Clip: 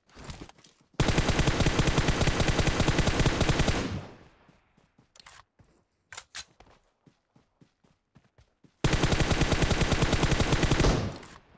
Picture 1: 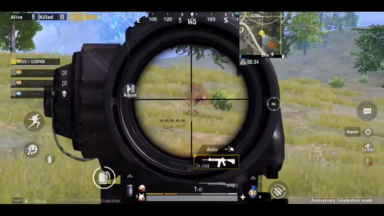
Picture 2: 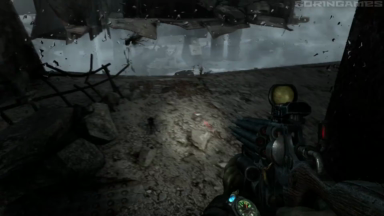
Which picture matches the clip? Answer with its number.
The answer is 1